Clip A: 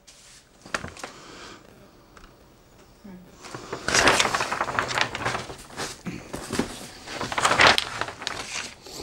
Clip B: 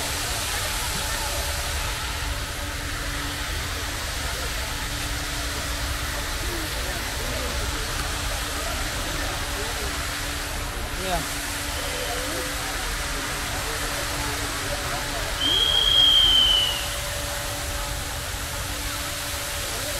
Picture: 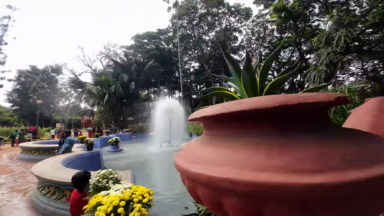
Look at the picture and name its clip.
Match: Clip B